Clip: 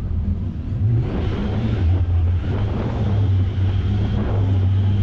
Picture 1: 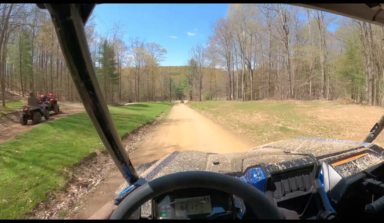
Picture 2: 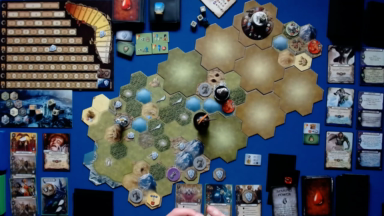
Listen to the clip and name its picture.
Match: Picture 1